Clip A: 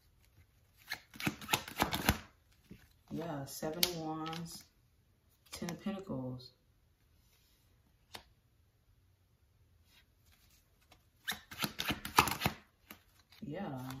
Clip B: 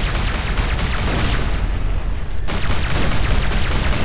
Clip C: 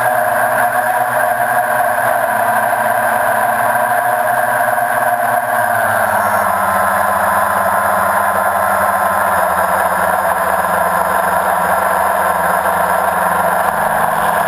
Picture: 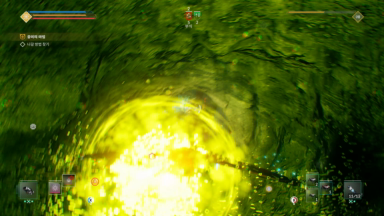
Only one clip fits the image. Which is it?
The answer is B